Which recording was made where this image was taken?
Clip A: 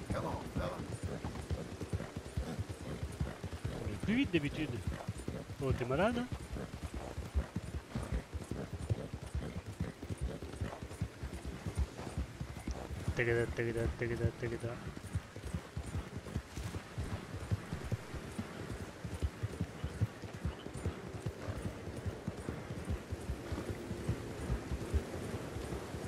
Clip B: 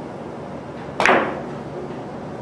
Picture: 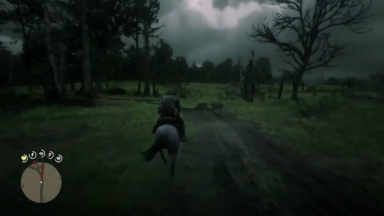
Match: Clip A